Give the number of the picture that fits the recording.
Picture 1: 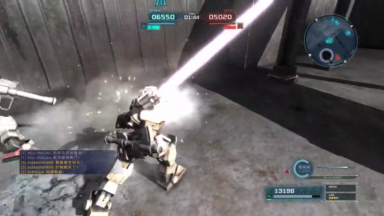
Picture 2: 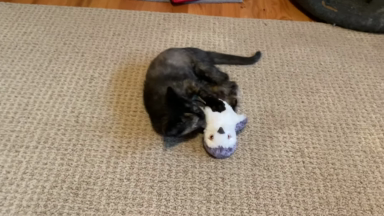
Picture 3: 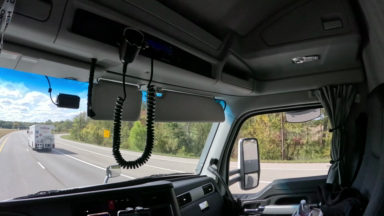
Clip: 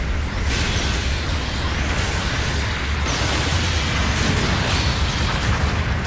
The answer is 1